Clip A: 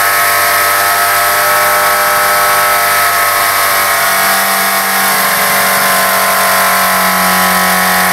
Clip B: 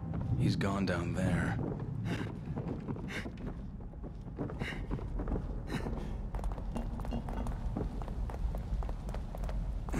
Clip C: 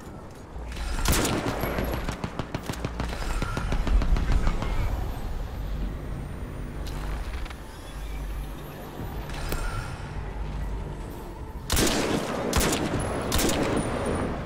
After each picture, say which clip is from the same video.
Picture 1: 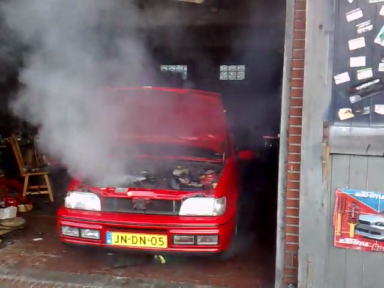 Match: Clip A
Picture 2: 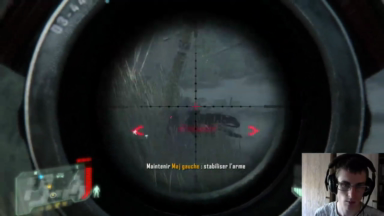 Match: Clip C